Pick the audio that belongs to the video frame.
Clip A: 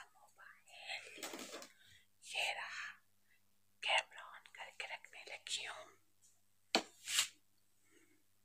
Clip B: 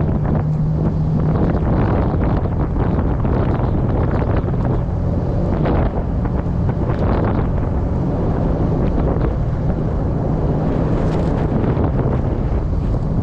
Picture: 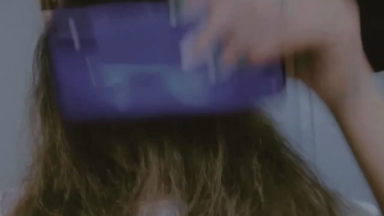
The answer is A